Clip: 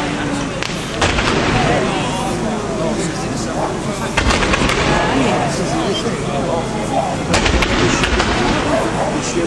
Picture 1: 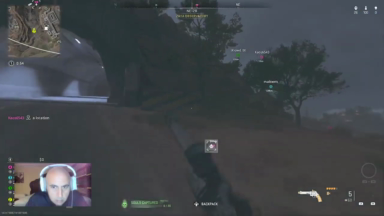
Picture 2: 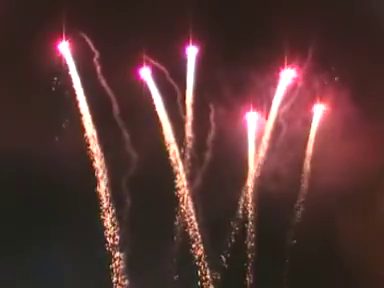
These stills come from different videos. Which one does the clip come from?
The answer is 2